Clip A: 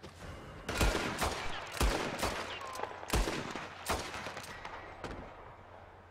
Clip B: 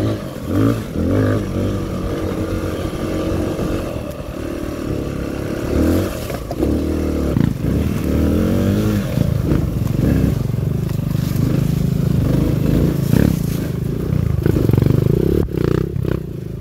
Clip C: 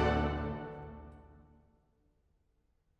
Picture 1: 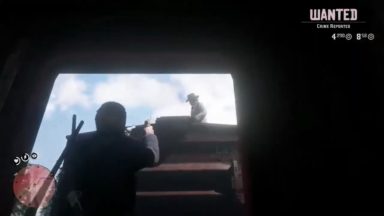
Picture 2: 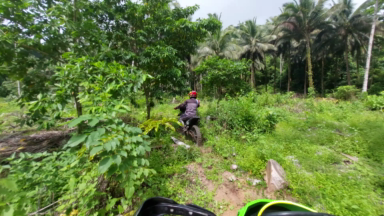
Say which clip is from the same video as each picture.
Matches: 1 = A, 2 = B